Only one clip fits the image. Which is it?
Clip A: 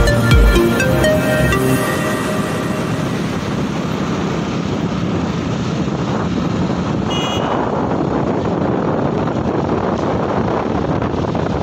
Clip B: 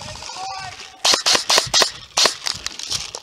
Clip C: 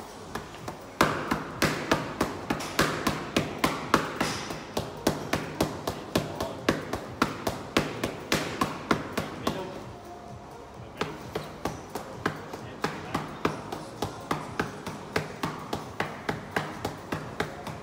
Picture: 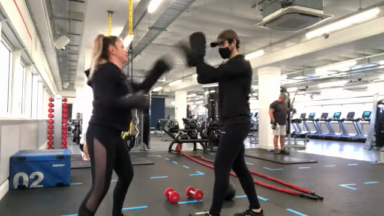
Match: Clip C